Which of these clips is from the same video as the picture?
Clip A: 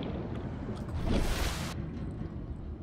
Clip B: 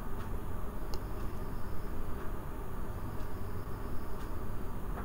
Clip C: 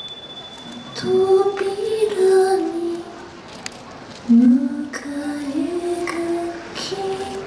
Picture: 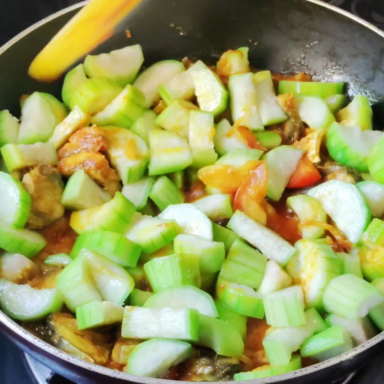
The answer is B